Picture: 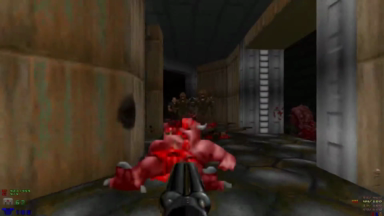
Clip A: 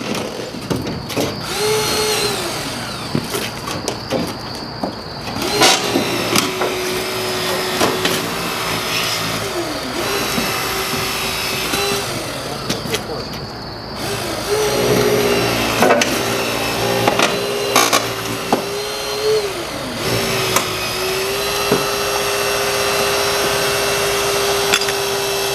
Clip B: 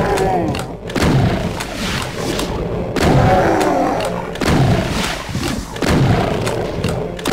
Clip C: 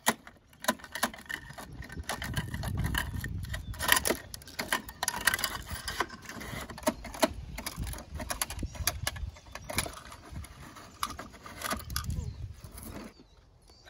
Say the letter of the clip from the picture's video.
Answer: B